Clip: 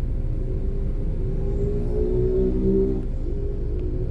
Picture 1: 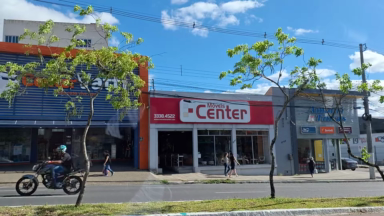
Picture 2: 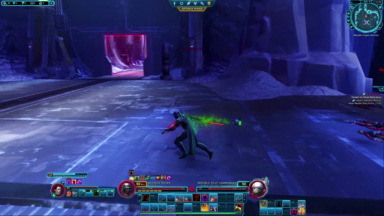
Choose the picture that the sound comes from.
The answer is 1